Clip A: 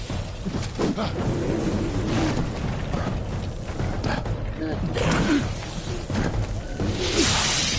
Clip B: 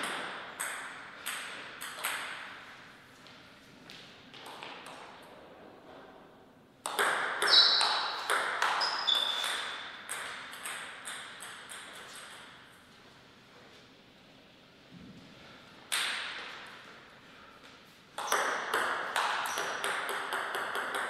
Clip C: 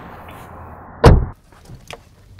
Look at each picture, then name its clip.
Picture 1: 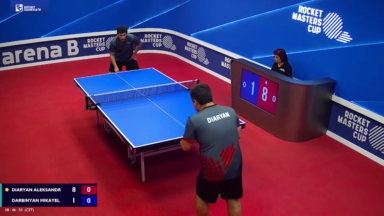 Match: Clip B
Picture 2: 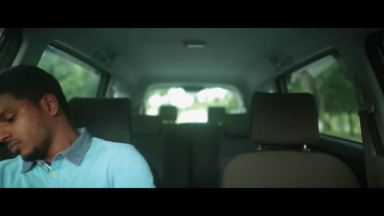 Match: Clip C